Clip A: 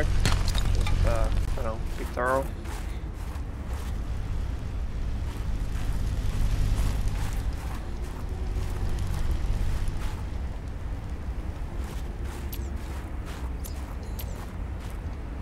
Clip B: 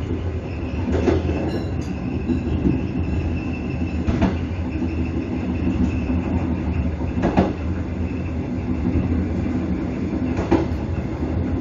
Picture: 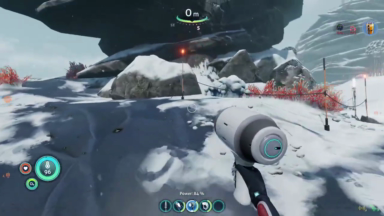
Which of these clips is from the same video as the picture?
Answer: A